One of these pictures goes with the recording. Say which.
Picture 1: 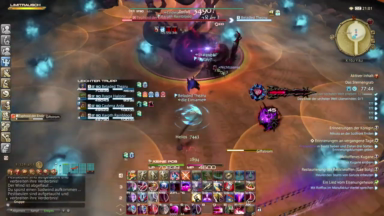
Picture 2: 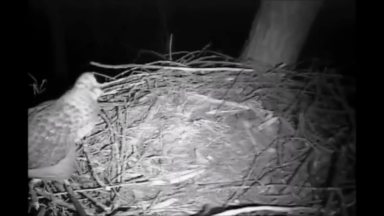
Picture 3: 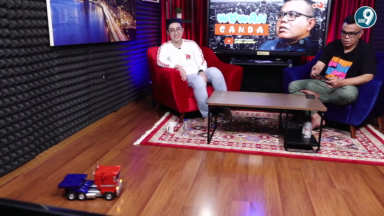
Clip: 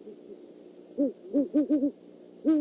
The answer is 2